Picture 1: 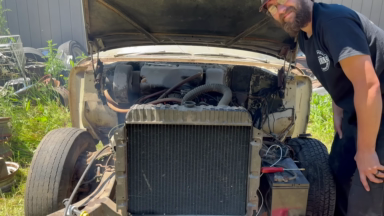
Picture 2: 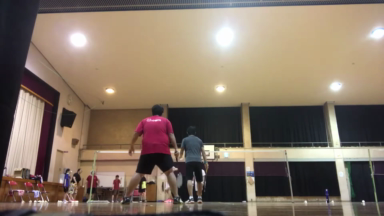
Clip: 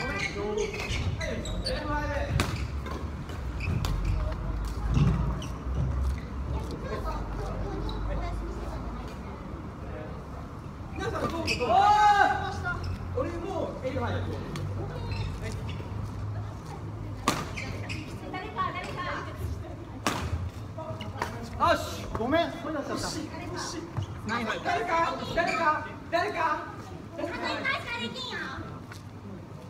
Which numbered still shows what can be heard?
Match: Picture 2